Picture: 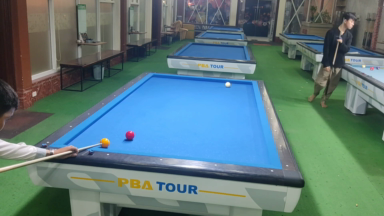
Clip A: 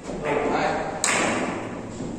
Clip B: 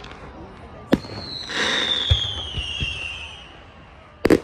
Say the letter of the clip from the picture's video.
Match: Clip A